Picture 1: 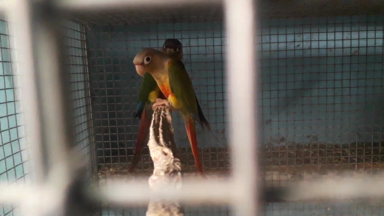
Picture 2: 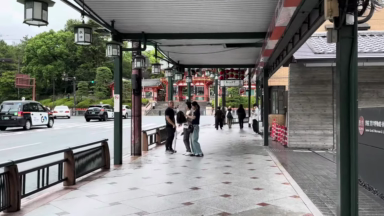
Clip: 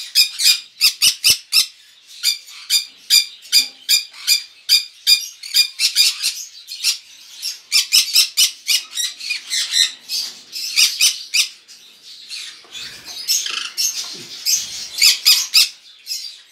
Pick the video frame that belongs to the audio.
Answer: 1